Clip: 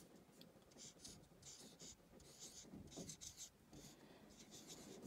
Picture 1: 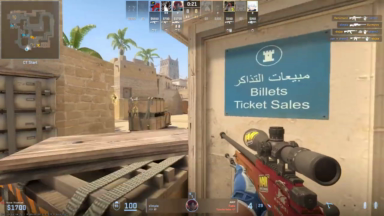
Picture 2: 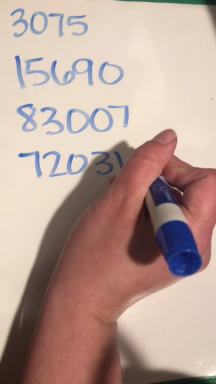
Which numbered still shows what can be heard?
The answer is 2